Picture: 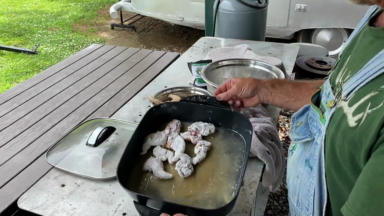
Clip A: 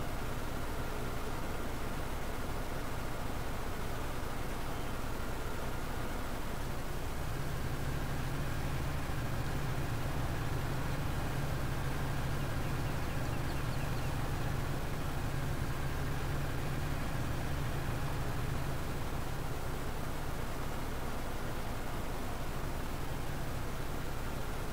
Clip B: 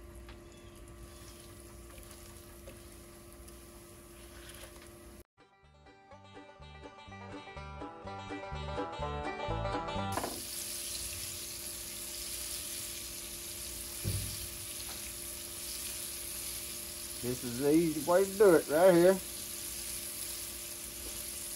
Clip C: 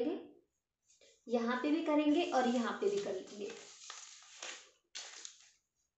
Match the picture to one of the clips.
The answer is B